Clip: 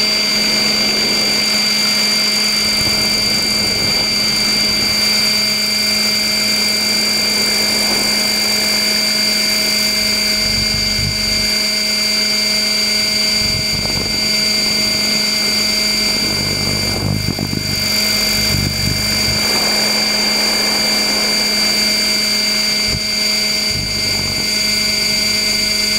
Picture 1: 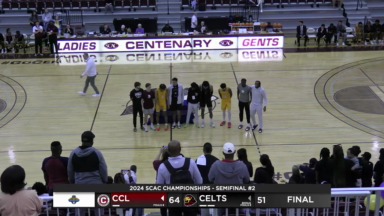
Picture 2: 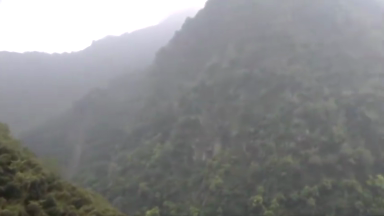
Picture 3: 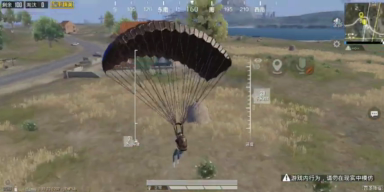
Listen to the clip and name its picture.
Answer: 2